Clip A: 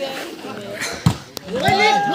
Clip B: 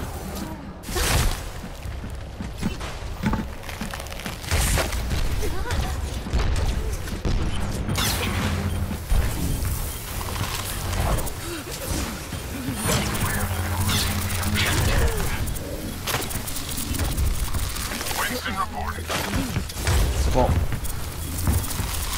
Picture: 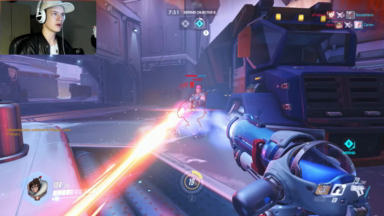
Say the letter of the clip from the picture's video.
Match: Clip B